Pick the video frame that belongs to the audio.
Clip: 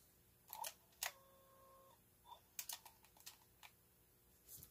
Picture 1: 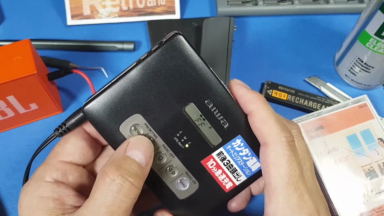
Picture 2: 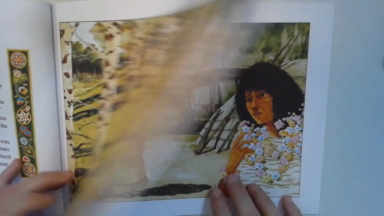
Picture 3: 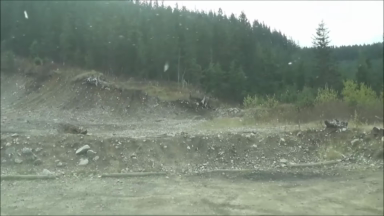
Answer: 1